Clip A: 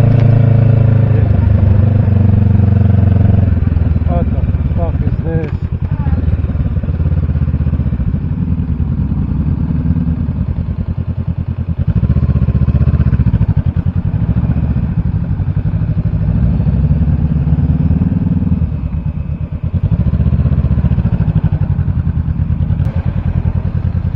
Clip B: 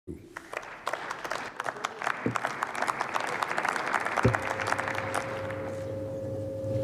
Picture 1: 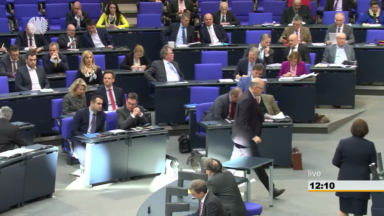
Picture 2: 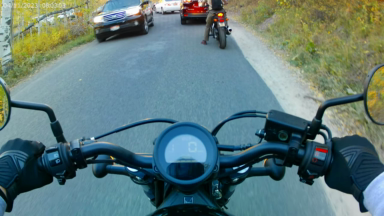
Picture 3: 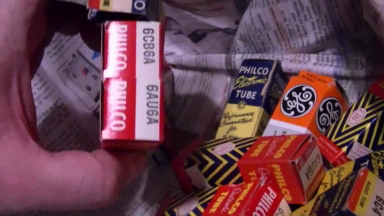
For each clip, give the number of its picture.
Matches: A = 2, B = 1